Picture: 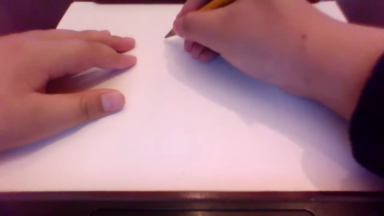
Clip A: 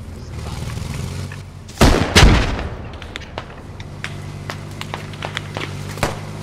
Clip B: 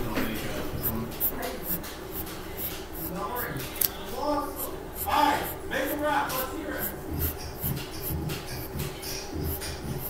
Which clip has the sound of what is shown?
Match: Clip B